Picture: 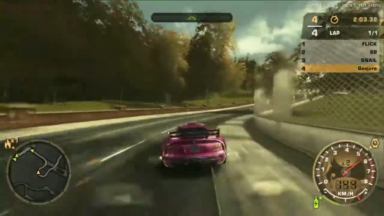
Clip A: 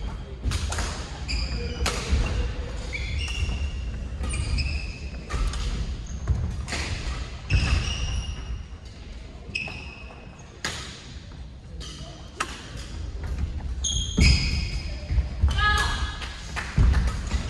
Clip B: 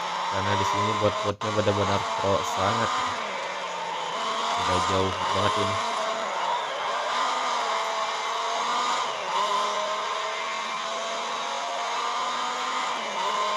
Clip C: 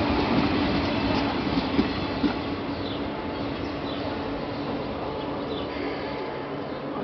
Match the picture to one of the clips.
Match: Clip B